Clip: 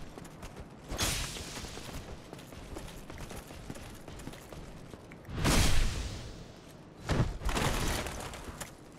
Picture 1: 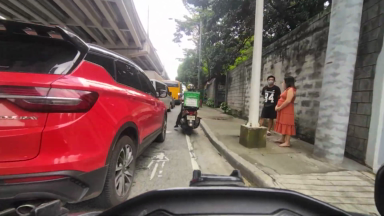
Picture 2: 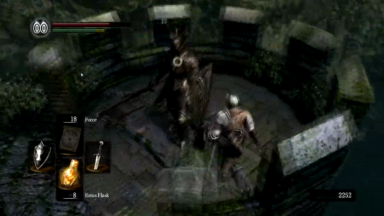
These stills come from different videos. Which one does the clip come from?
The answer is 2